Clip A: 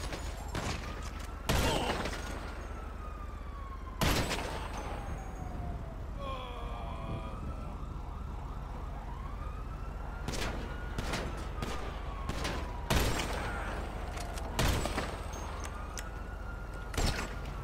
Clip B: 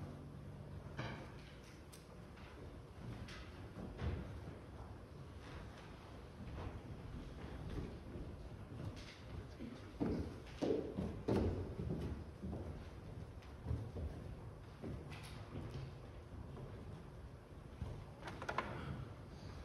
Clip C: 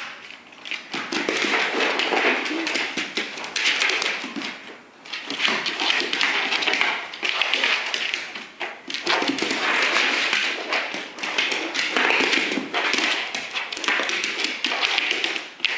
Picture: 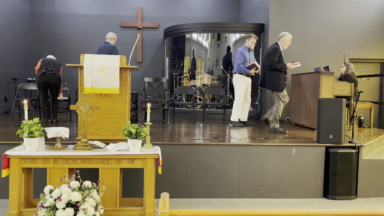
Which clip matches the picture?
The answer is B